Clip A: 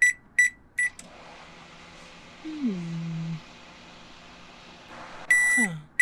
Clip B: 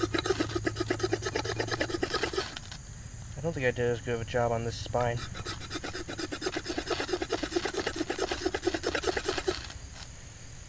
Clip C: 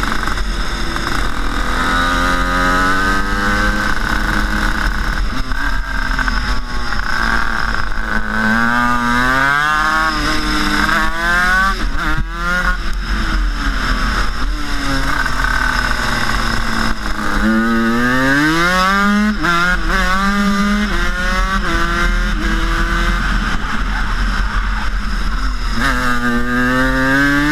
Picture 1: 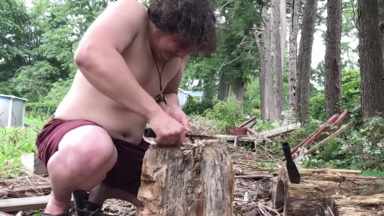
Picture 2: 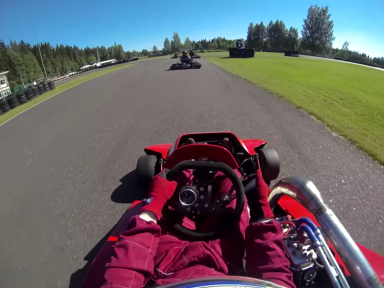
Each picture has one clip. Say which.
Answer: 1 B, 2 C